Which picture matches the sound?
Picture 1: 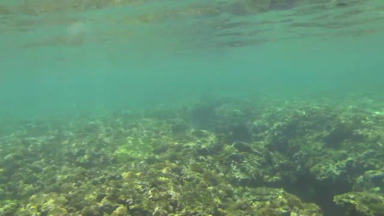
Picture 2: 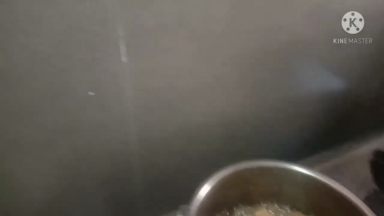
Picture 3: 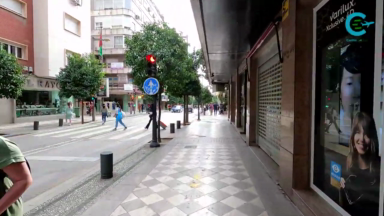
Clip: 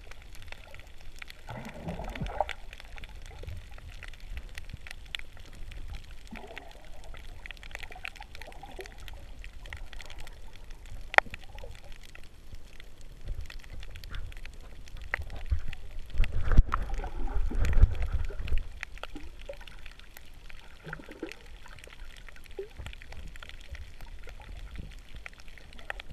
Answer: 1